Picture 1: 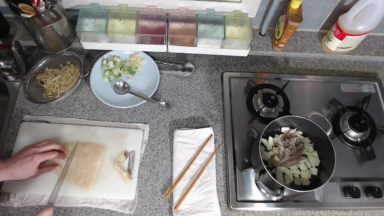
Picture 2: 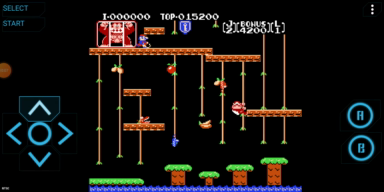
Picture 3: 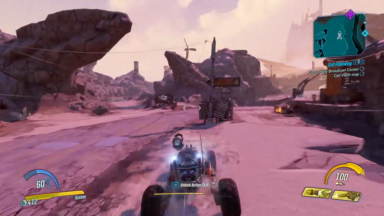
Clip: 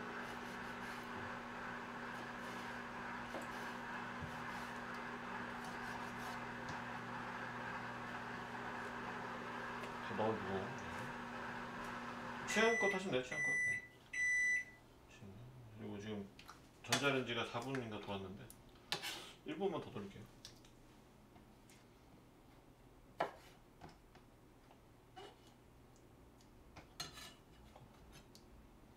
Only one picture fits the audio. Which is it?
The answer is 1